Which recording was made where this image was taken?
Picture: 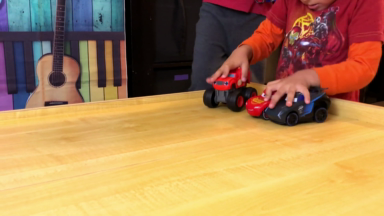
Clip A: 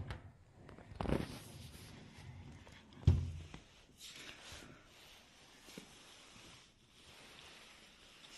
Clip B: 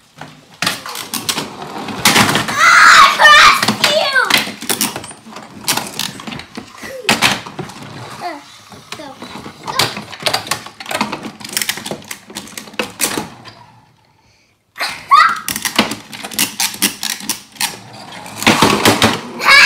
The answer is B